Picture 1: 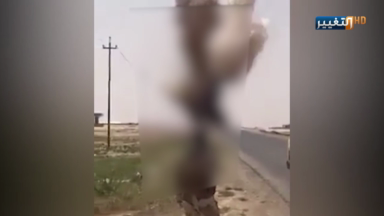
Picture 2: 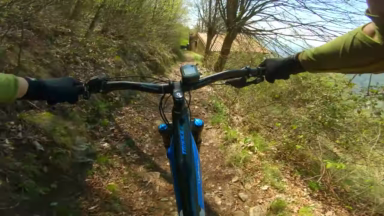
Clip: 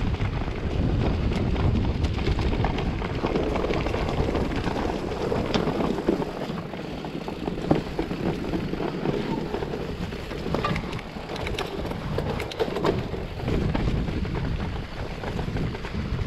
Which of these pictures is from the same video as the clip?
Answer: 2